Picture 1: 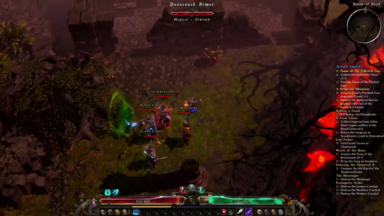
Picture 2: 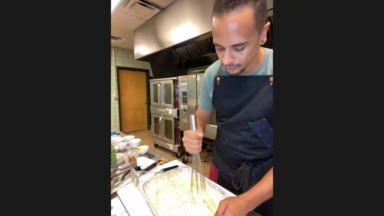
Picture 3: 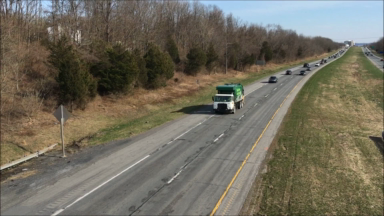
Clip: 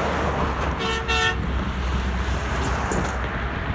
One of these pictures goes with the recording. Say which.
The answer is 3